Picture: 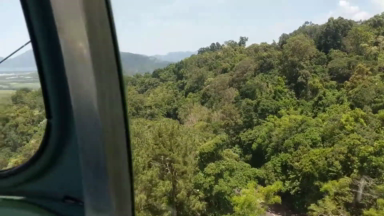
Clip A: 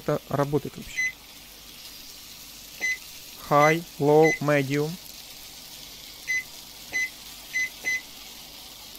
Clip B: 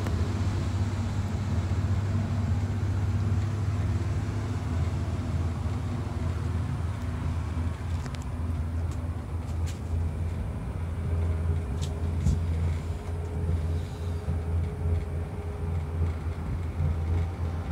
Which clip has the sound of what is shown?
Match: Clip B